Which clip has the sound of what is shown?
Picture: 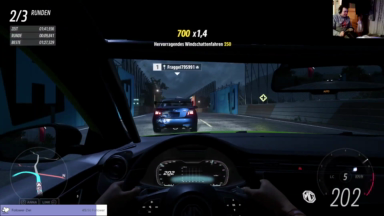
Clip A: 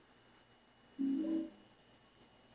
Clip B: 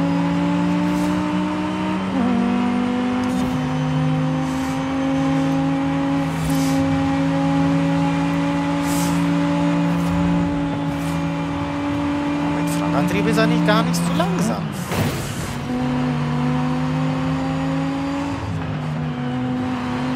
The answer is B